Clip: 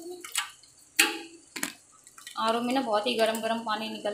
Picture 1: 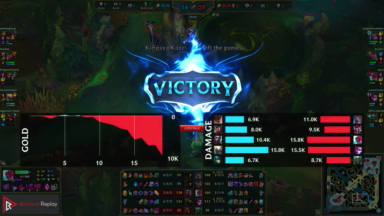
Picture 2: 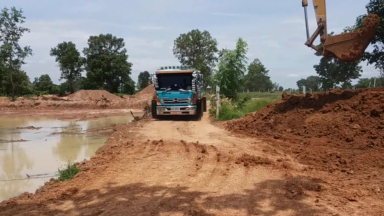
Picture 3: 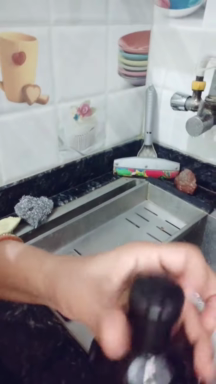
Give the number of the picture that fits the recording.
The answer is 3